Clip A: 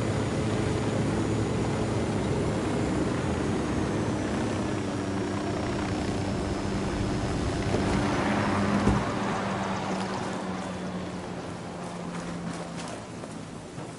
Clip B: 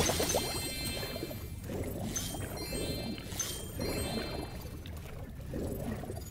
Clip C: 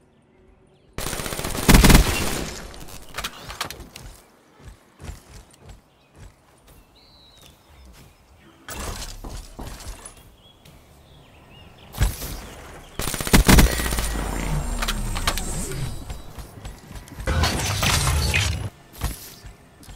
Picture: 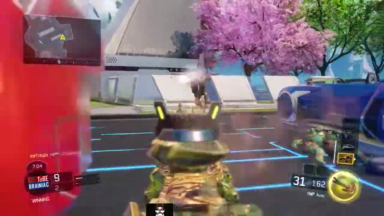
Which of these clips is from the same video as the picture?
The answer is C